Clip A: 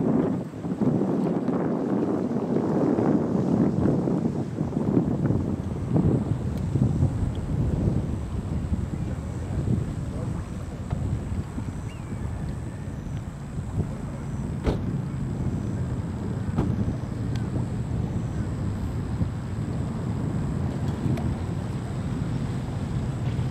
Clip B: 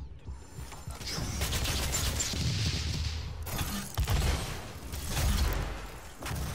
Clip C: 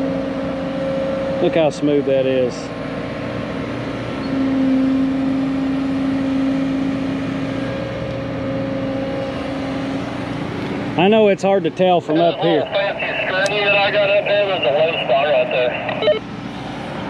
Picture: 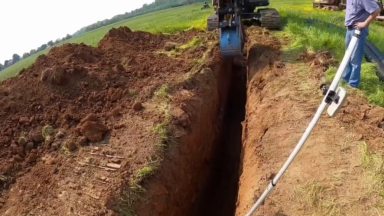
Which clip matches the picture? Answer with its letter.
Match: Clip C